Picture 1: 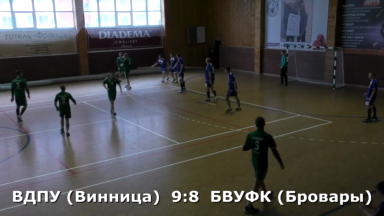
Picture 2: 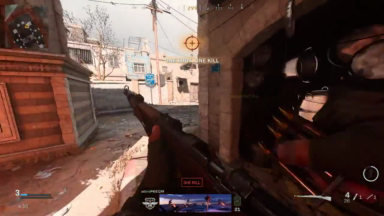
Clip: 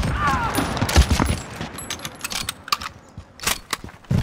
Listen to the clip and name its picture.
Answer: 2